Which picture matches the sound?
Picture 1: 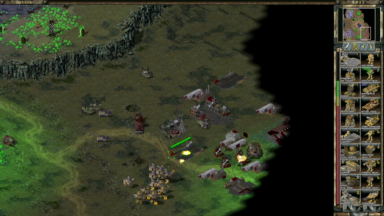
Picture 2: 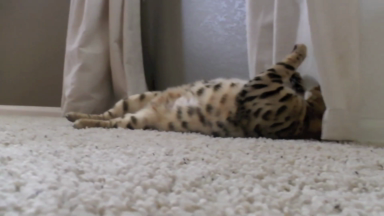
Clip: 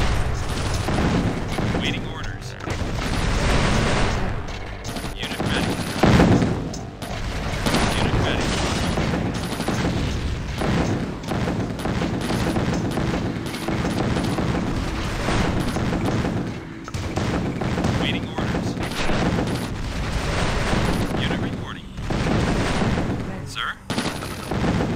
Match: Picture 1